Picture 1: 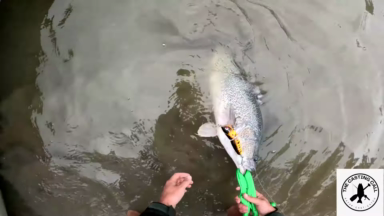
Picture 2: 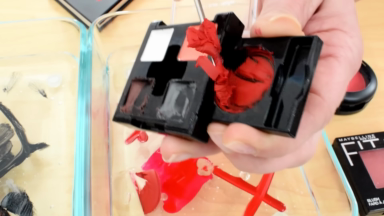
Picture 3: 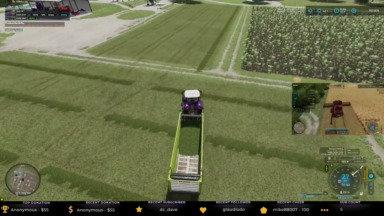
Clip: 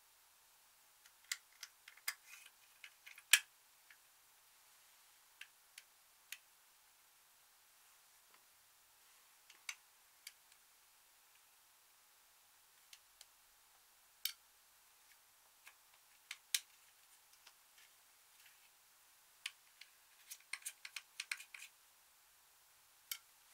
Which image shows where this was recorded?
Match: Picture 2